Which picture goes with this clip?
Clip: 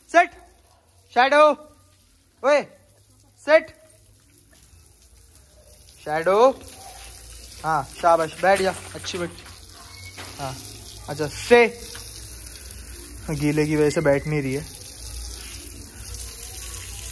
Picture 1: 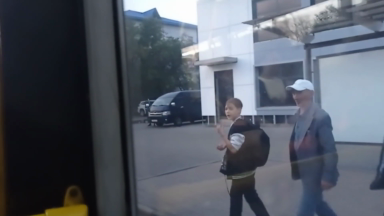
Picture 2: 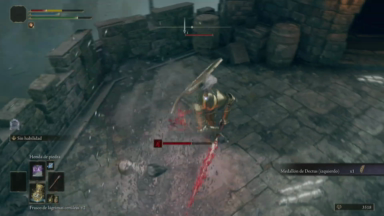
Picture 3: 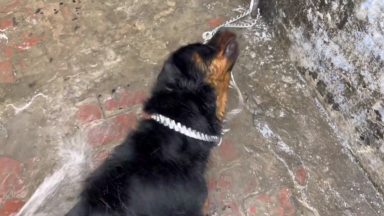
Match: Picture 3